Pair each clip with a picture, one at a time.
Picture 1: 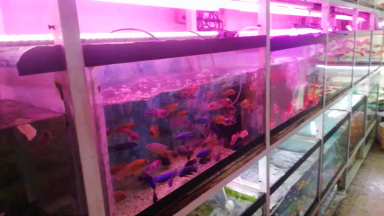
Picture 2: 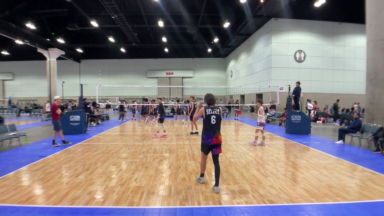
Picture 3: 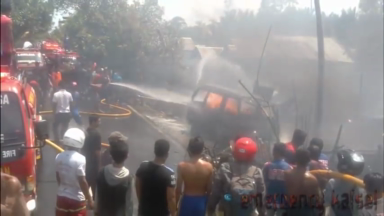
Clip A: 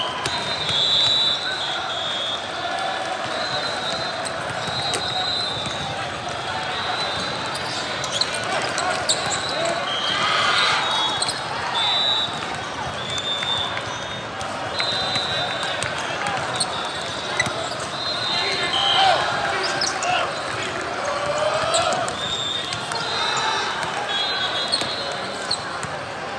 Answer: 2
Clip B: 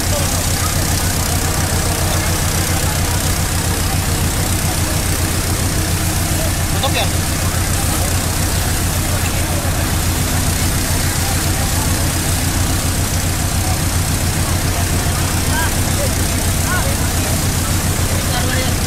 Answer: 3